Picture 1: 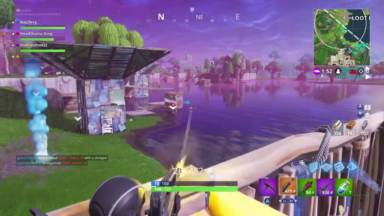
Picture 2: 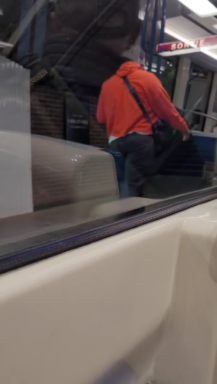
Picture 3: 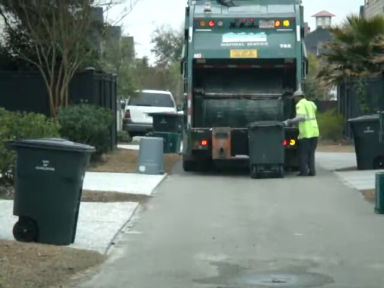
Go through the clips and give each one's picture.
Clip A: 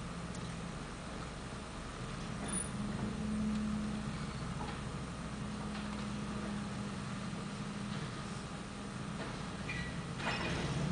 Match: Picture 3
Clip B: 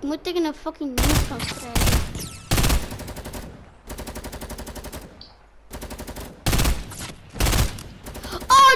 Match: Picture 1